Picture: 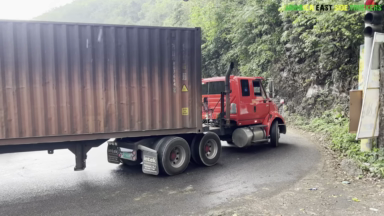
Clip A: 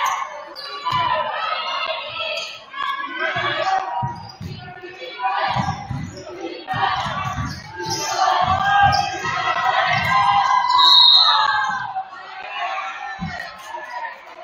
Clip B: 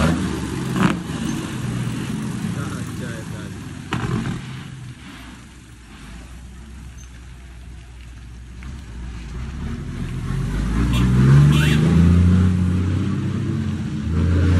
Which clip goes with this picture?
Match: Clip B